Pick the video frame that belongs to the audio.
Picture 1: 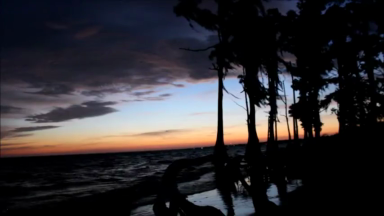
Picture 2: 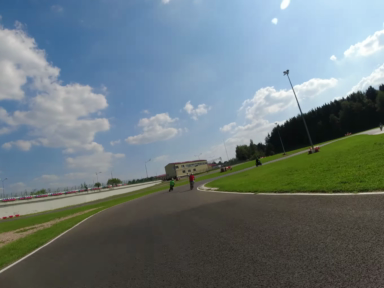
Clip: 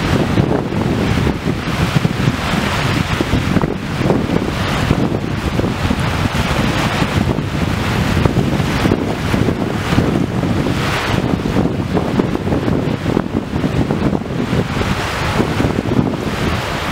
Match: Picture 1